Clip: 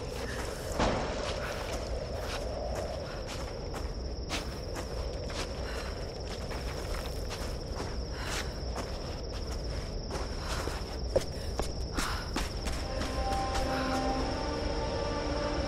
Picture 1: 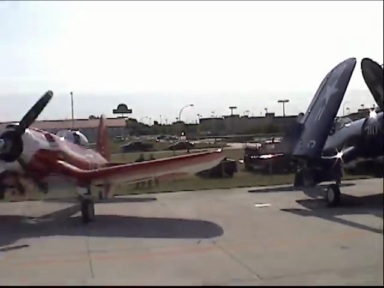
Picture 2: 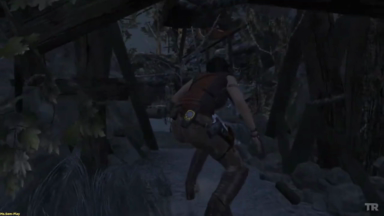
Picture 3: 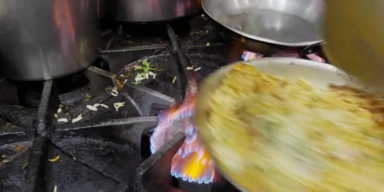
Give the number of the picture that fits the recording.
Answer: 2